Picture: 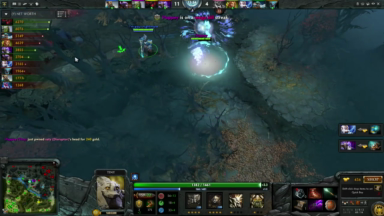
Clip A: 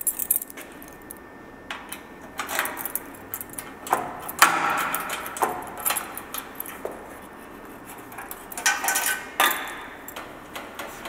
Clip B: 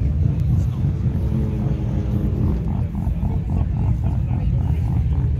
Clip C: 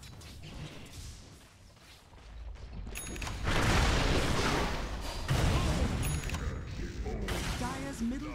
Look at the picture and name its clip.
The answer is C